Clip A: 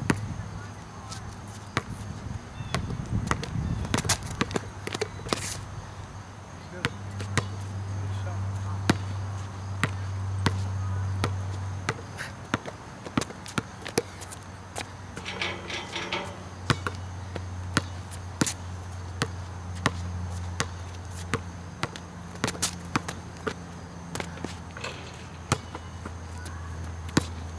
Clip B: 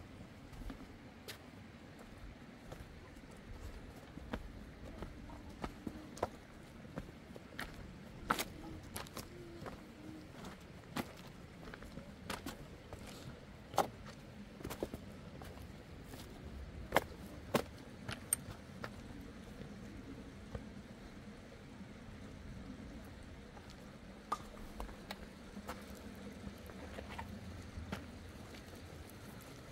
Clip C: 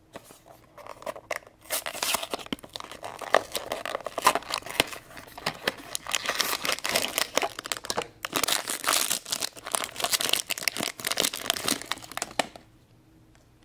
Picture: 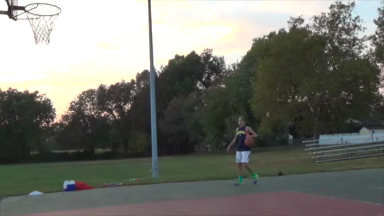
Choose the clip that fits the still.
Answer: A